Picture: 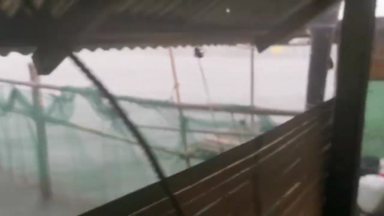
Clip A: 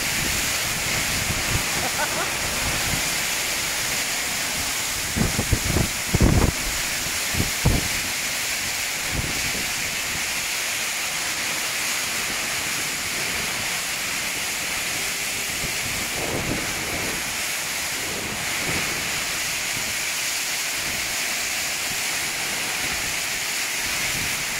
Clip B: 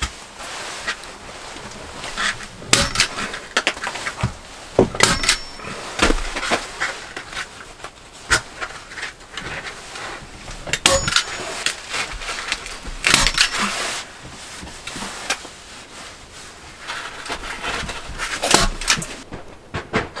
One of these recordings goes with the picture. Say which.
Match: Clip A